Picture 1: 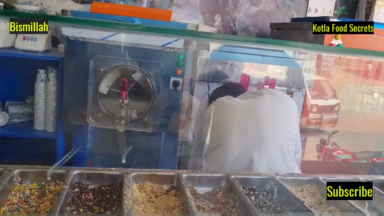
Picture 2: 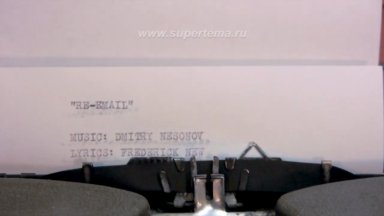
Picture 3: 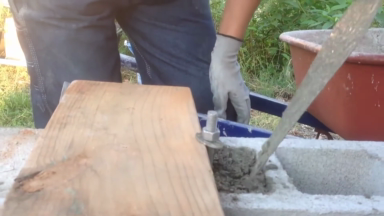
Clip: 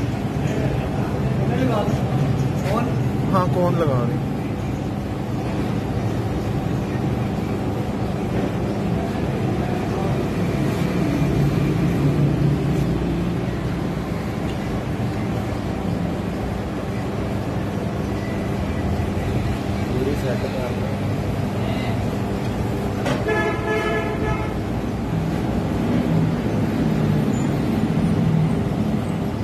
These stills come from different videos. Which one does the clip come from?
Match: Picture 1